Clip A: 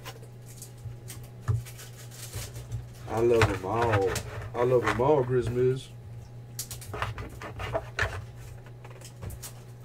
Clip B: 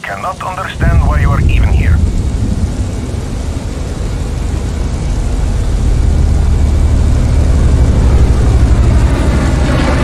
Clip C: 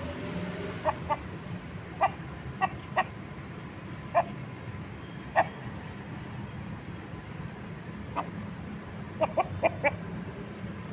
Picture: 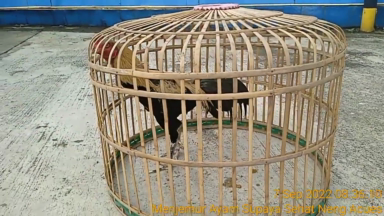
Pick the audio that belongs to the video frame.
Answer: C